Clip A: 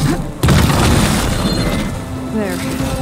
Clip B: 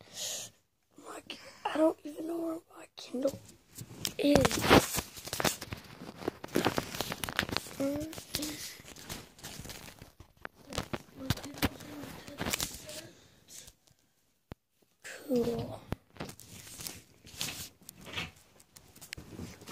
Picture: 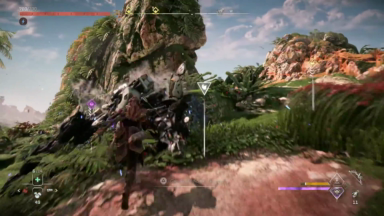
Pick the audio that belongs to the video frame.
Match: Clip A